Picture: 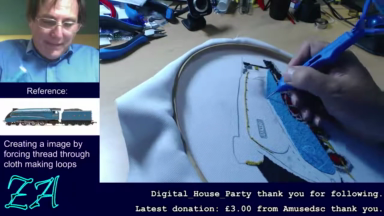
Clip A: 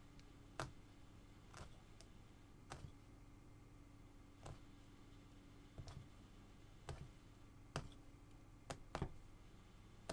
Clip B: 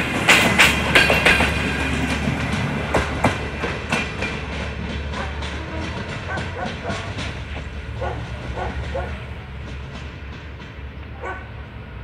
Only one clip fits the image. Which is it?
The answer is A